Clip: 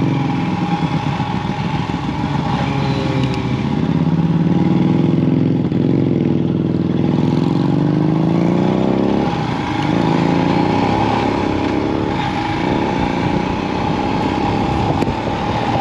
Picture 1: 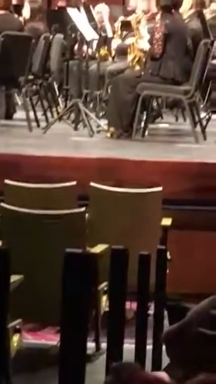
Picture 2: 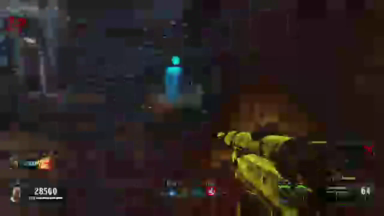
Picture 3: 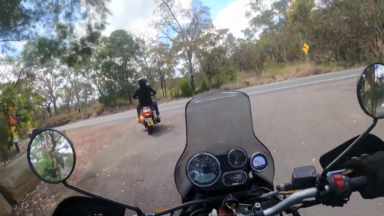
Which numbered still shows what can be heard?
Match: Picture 3